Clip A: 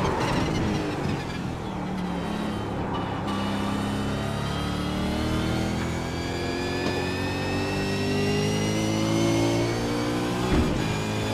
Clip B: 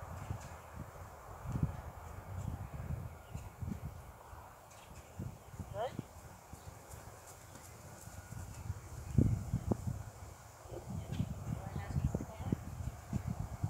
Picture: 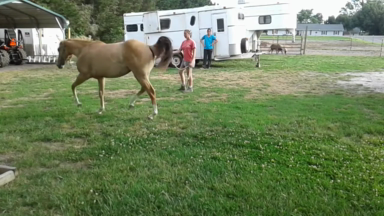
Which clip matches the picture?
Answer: B